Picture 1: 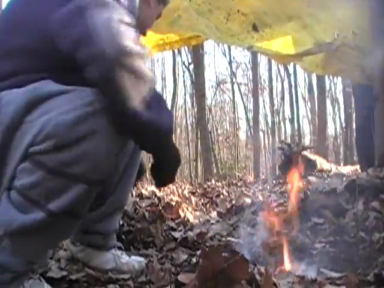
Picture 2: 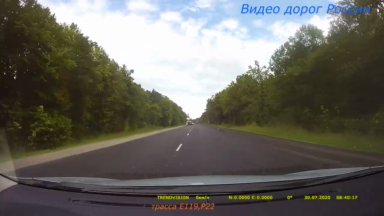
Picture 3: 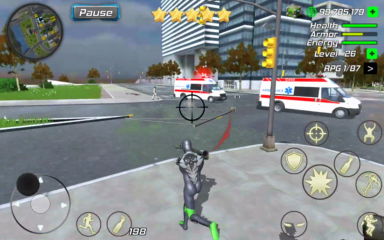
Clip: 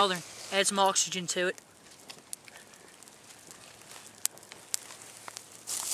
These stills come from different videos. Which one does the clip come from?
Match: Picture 1